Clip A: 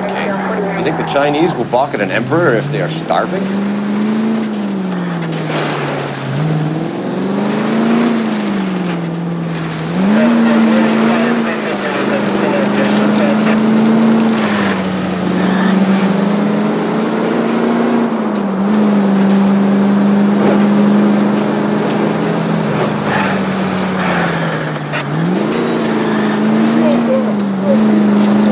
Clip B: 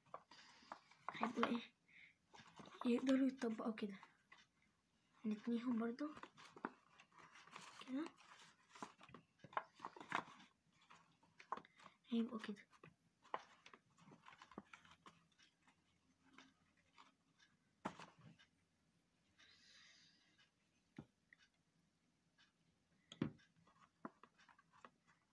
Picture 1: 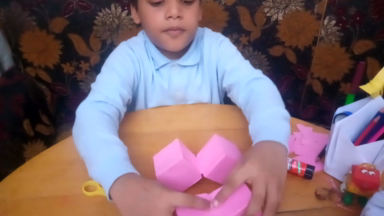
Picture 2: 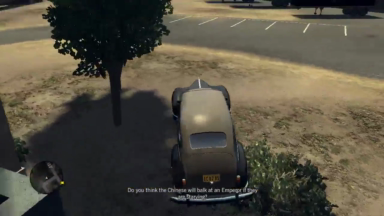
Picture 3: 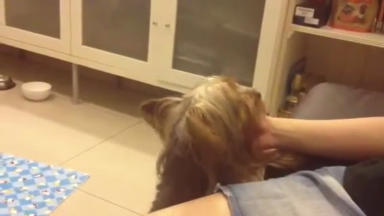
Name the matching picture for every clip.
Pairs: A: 2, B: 1